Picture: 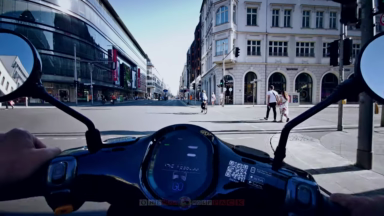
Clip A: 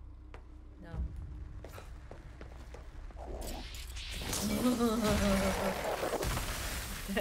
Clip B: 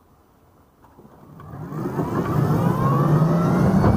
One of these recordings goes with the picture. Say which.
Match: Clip B